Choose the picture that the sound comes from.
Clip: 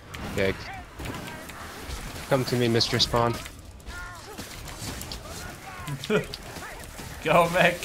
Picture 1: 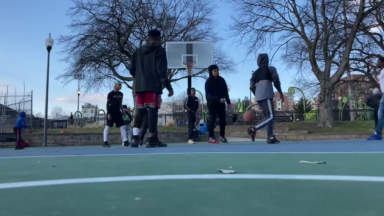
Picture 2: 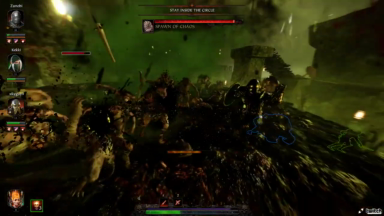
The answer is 2